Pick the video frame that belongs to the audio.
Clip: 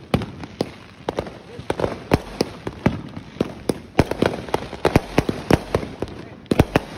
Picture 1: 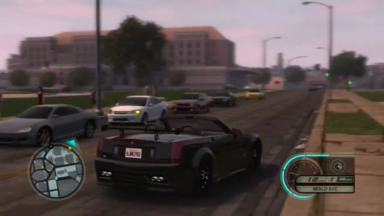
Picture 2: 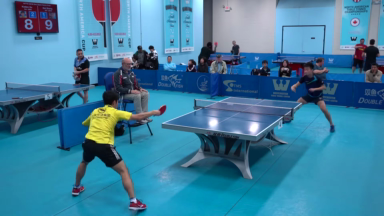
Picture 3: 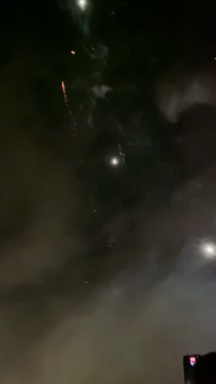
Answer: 3